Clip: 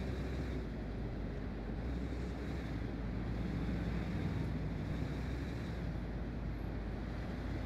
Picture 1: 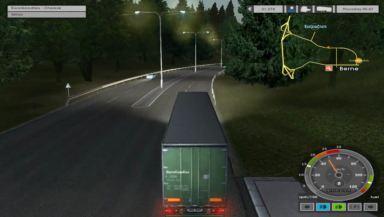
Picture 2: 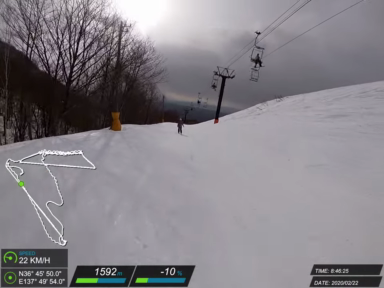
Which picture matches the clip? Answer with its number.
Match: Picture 1